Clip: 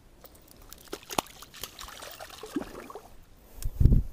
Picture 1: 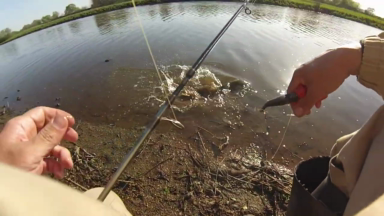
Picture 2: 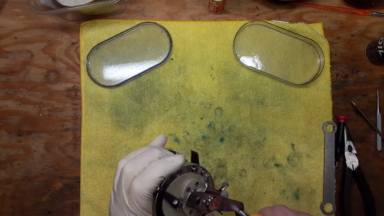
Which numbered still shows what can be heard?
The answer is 1